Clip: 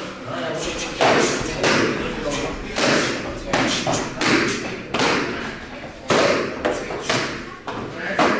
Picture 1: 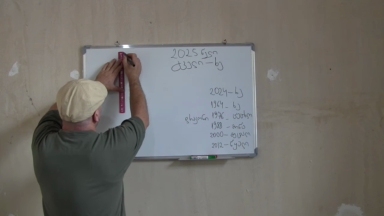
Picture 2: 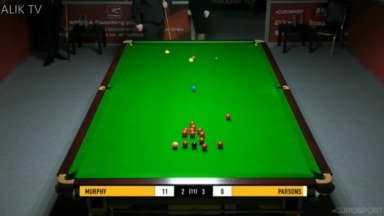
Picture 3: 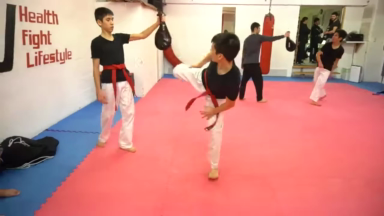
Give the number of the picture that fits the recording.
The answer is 3